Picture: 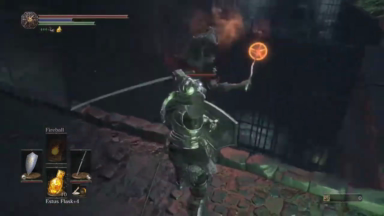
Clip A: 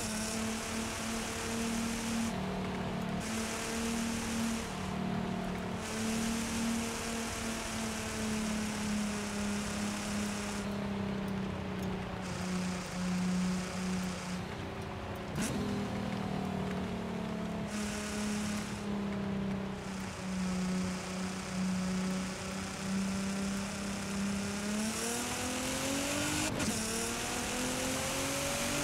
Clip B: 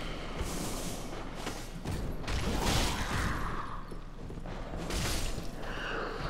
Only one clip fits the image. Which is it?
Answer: B